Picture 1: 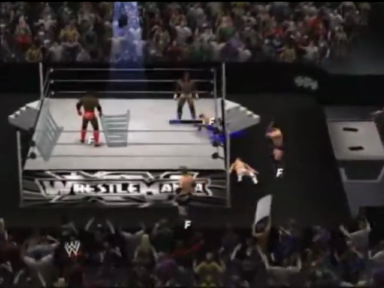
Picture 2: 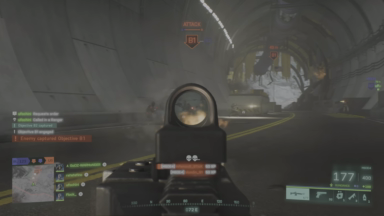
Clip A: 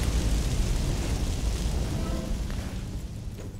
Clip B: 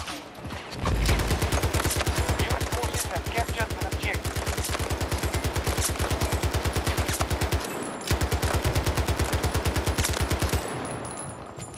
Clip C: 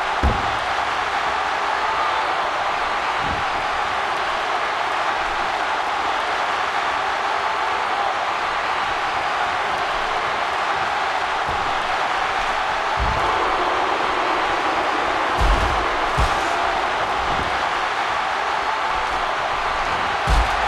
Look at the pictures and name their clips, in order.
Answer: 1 C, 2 B